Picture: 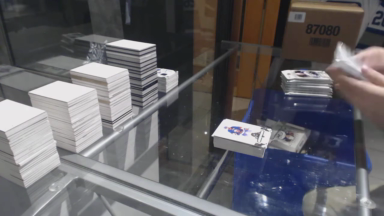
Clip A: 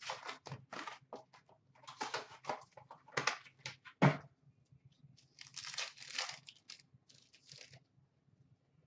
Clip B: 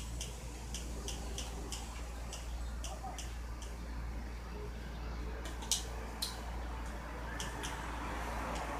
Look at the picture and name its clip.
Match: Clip A